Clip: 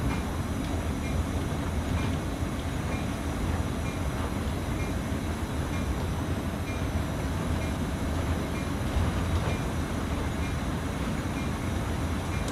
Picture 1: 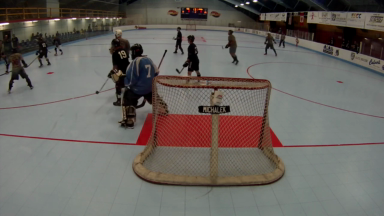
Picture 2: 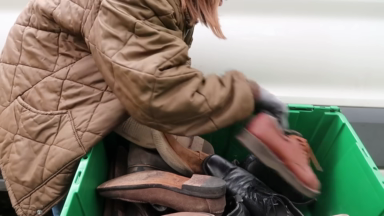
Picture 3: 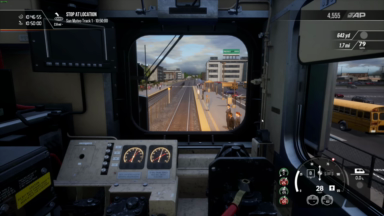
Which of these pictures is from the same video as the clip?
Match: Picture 3